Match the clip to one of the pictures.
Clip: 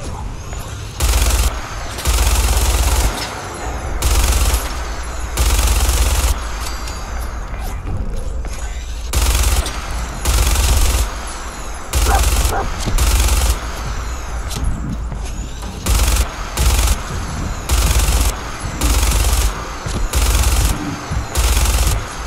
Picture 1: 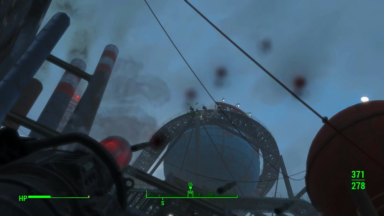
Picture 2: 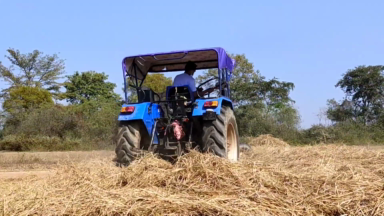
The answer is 1